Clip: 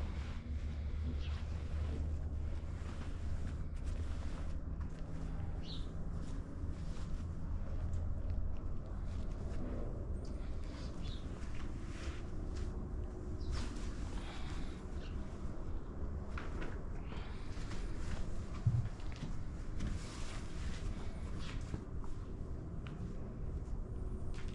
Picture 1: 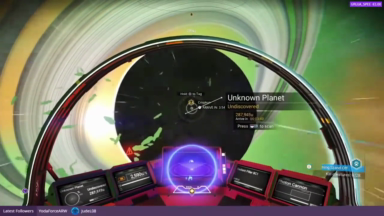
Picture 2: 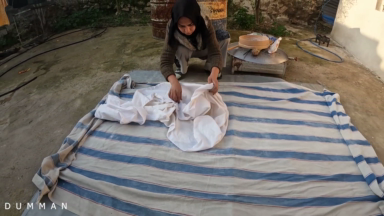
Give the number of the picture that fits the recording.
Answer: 2